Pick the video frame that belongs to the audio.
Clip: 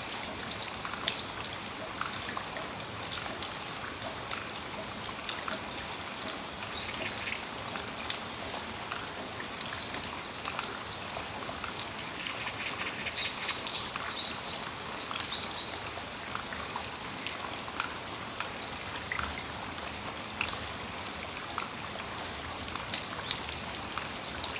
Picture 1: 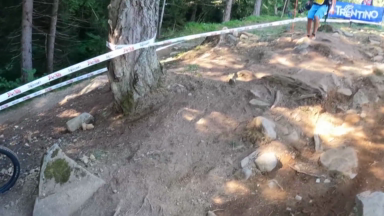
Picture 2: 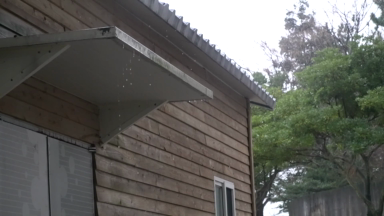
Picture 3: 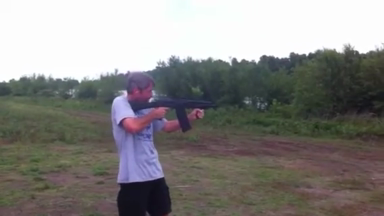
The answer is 2